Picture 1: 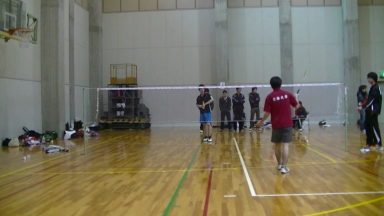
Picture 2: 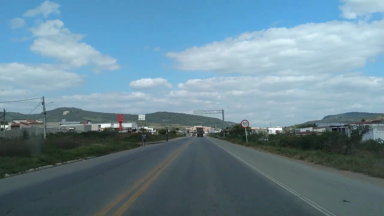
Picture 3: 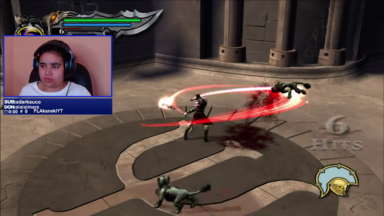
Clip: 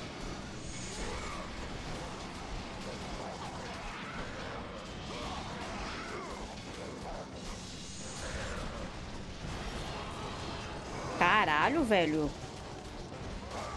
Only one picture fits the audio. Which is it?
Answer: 3